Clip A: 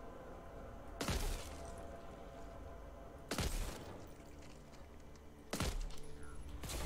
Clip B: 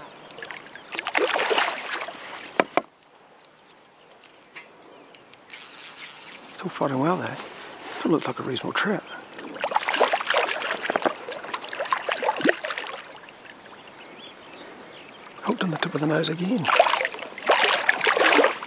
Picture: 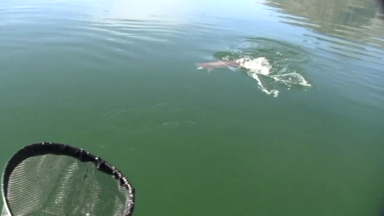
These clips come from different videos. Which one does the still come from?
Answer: B